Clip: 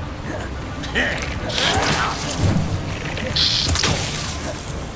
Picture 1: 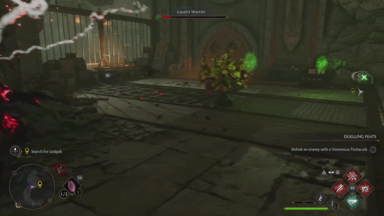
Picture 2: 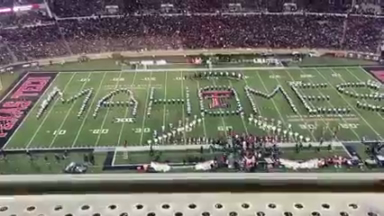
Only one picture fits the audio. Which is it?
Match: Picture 1